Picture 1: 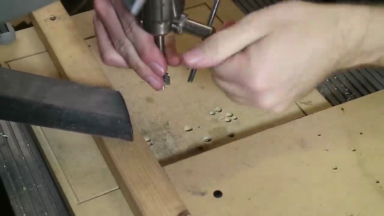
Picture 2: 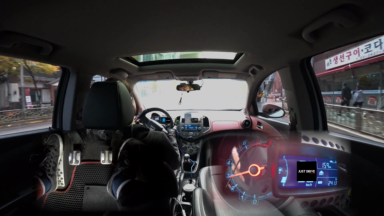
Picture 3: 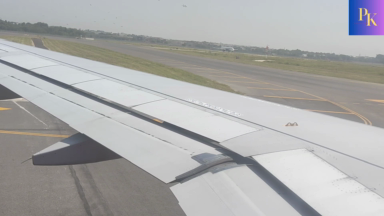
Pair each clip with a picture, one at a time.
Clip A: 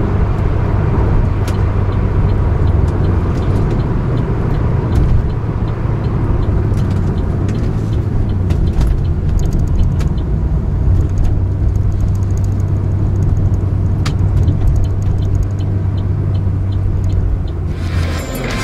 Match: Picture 2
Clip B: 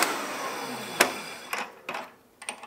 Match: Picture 1